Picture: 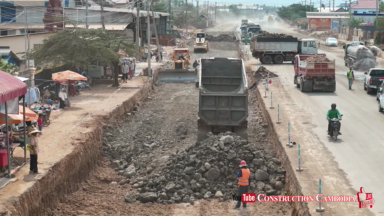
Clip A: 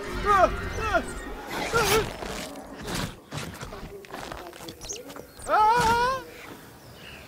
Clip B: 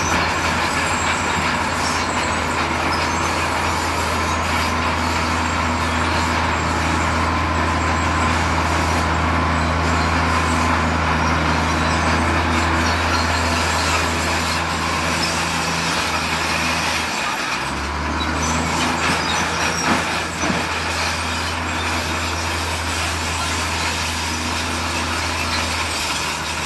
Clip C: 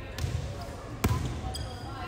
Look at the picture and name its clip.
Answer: B